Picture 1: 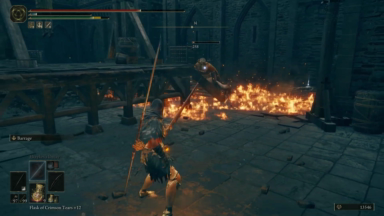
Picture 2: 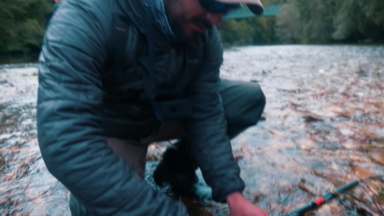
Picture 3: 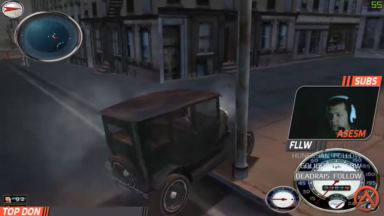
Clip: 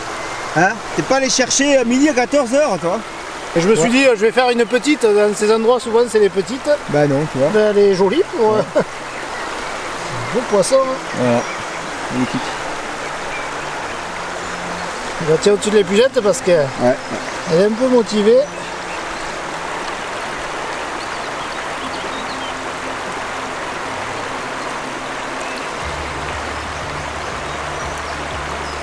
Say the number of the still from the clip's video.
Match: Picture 2